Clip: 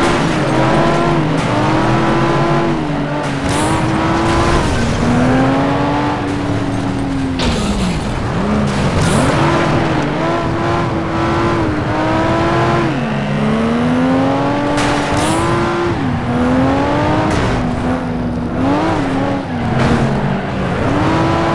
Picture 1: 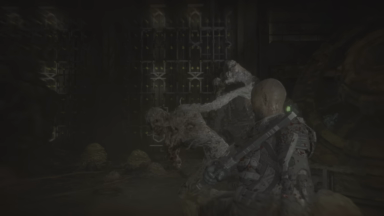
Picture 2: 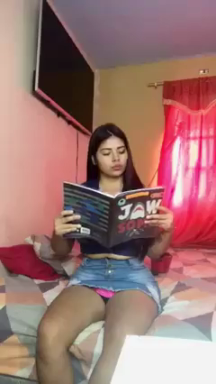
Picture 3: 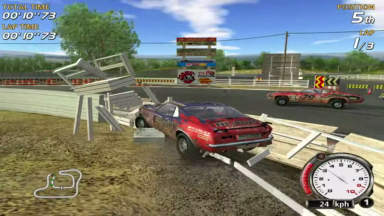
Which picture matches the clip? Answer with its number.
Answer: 3